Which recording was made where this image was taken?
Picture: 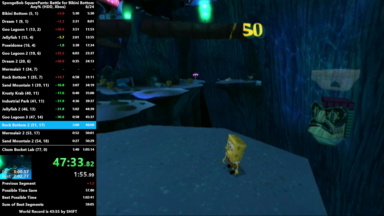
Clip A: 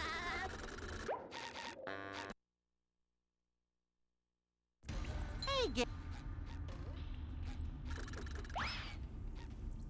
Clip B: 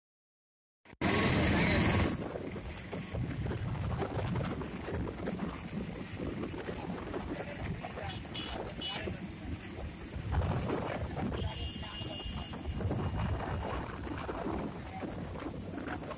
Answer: A